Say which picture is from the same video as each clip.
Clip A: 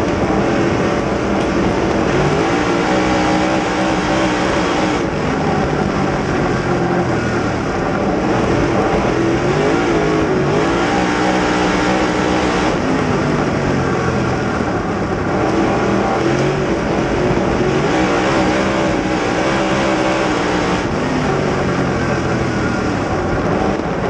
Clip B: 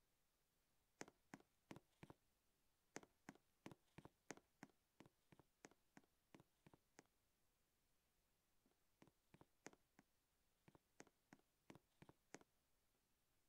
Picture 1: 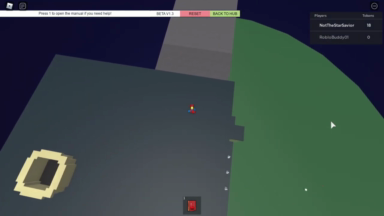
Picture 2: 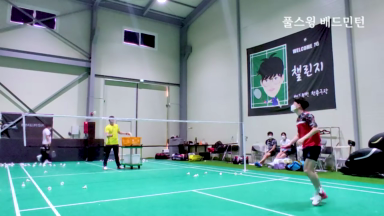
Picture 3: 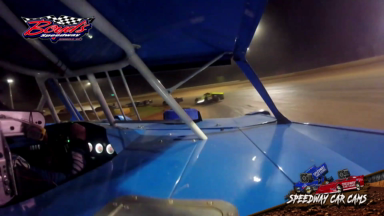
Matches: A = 3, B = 1